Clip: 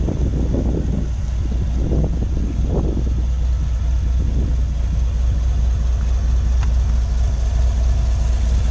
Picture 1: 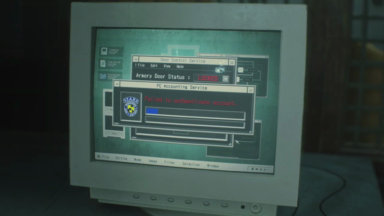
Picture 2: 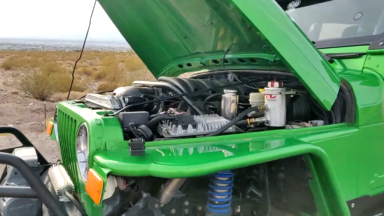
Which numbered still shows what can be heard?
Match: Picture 2